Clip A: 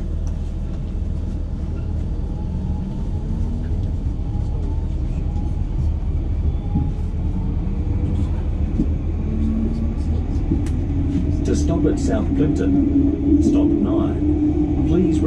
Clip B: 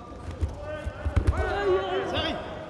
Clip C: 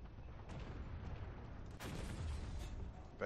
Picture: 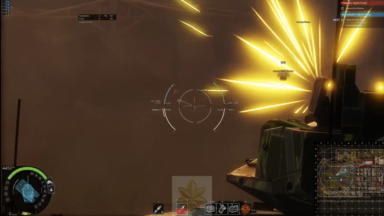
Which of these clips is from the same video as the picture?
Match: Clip C